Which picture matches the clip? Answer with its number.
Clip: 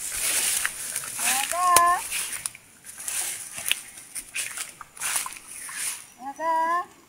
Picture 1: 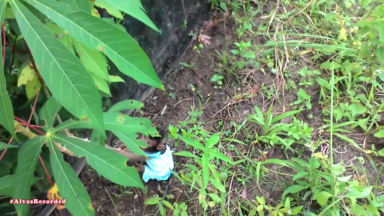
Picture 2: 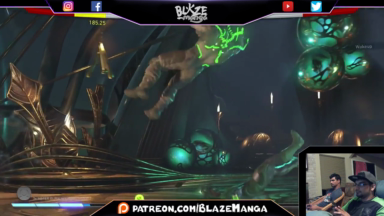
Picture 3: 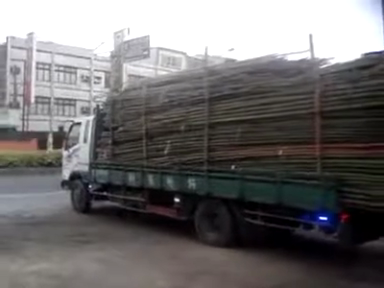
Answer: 1